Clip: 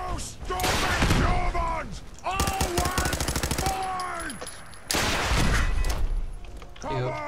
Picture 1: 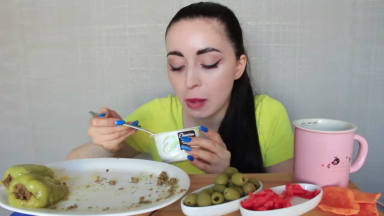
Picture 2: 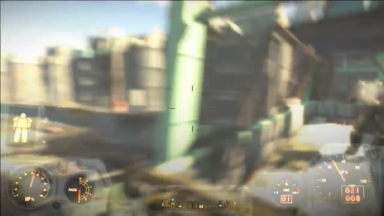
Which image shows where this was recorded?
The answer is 2